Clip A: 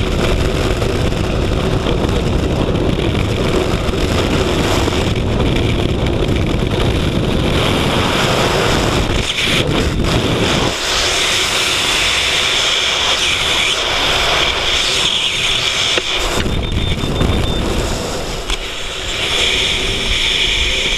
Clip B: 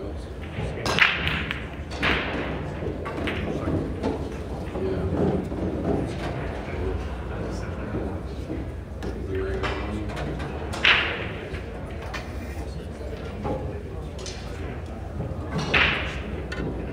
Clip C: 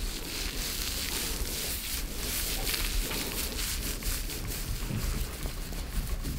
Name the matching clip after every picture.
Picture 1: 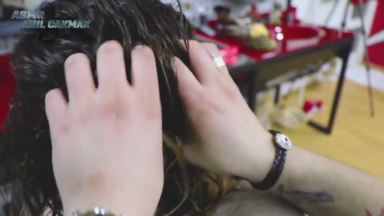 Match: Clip C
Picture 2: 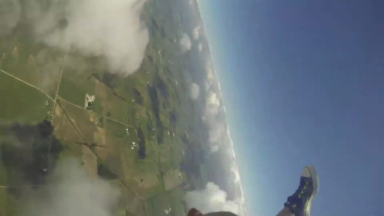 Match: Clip A